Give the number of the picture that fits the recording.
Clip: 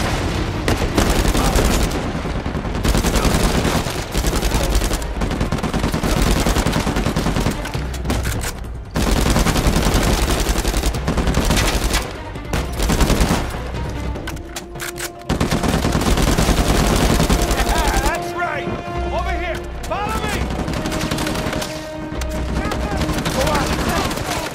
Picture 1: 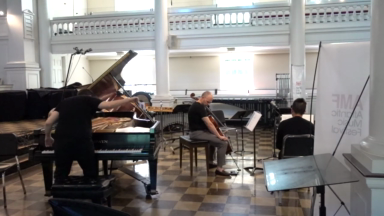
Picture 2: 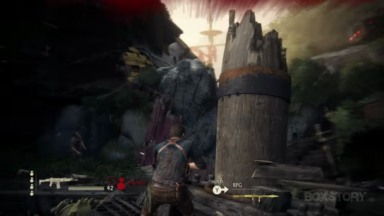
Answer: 2